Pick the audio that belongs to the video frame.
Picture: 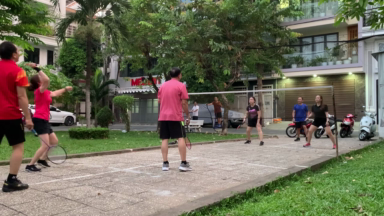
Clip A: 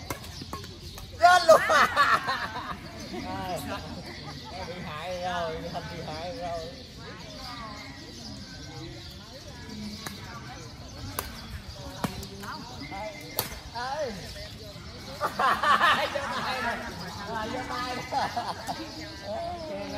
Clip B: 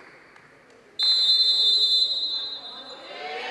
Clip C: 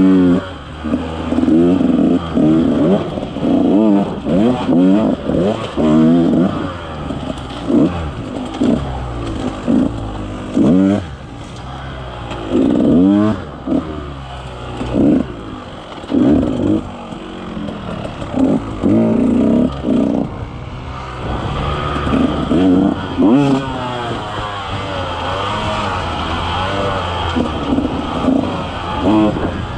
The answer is A